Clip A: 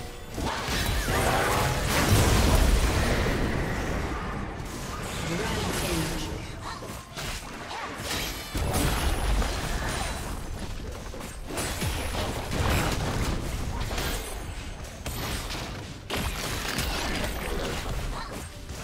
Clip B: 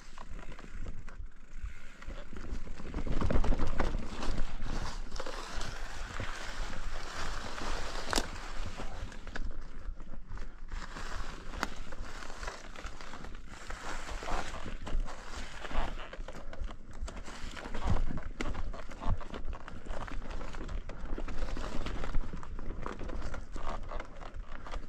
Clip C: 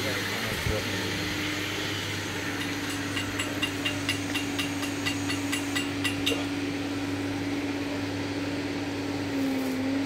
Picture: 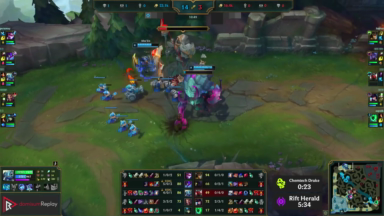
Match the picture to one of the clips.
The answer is A